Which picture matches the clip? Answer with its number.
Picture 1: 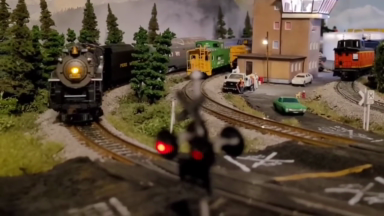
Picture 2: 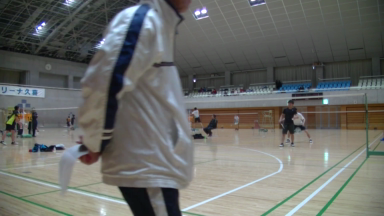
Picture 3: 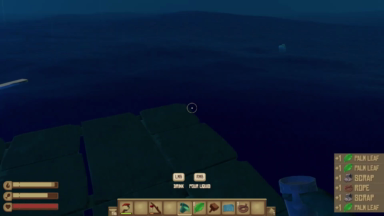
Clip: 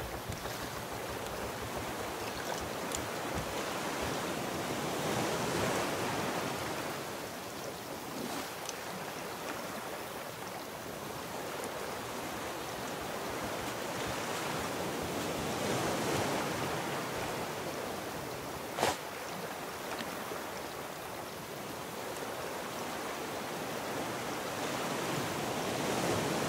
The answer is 3